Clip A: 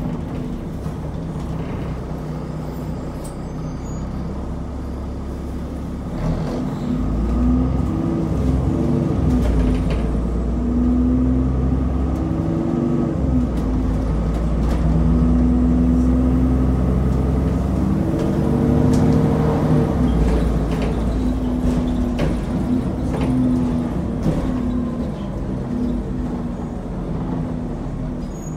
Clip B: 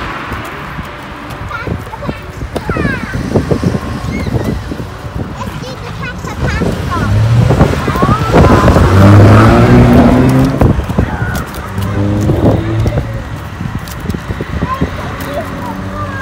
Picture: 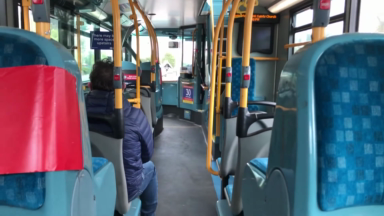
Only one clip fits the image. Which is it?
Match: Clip A